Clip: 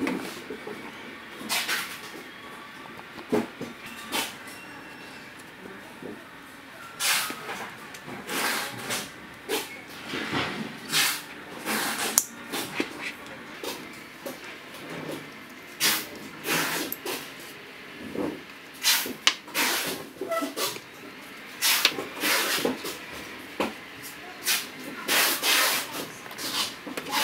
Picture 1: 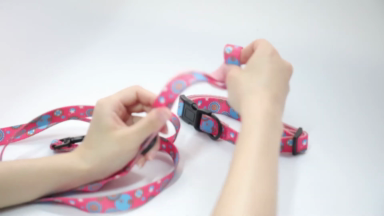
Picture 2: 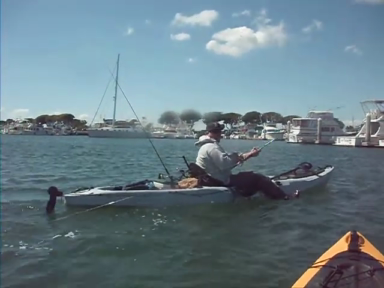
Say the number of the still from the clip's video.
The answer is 1